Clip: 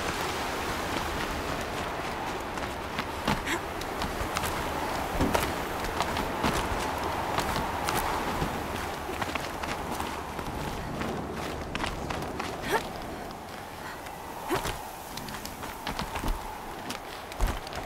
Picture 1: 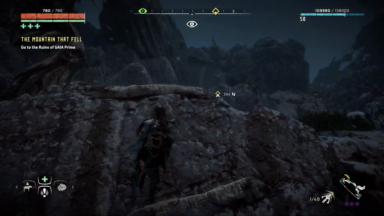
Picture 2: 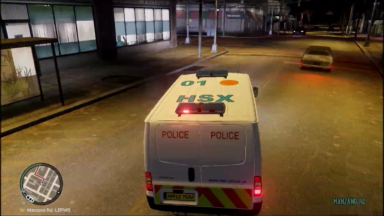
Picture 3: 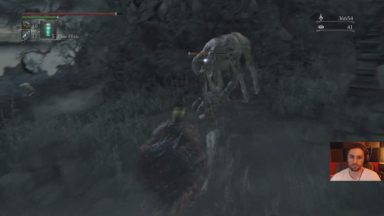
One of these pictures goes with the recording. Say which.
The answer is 1